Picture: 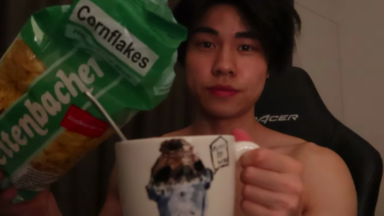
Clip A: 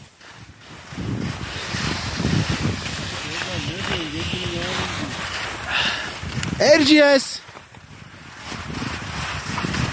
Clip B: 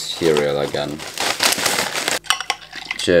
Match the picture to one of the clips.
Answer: B